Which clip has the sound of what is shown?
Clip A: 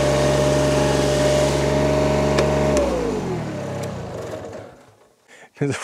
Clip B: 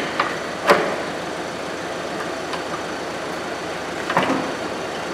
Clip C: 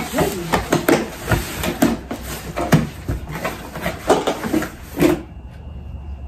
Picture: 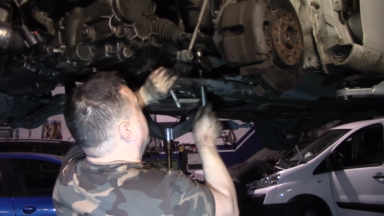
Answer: B